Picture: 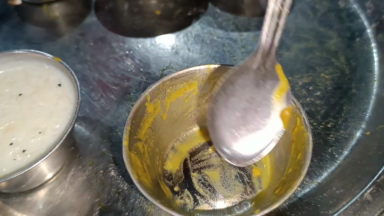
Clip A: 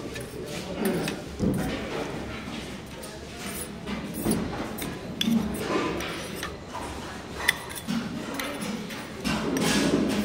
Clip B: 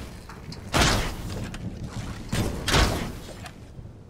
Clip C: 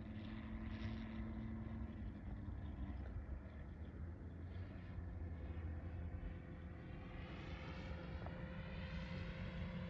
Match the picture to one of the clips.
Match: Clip A